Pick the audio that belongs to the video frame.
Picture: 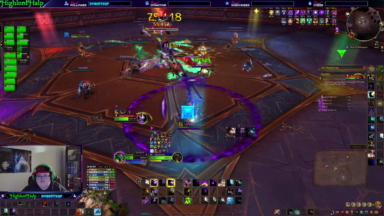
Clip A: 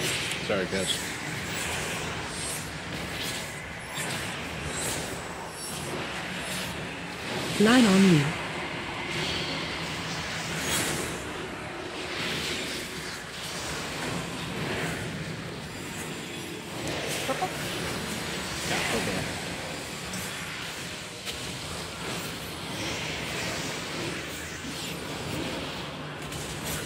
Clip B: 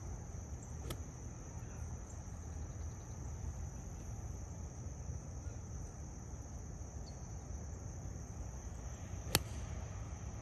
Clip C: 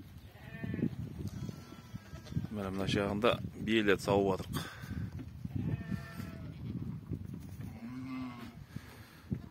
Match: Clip A